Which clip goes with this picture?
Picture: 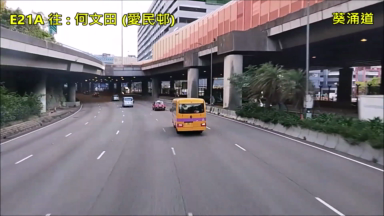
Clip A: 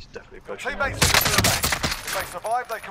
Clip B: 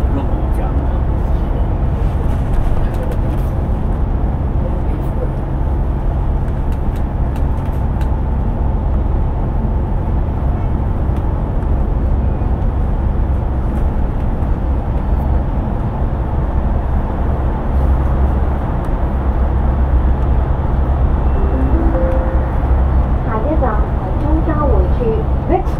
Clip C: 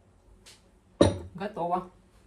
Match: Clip B